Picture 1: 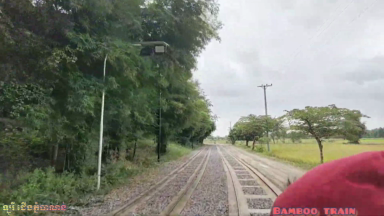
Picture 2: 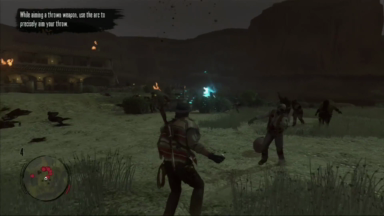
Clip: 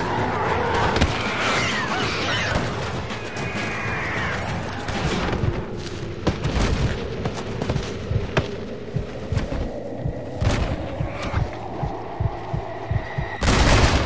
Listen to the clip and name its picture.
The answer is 2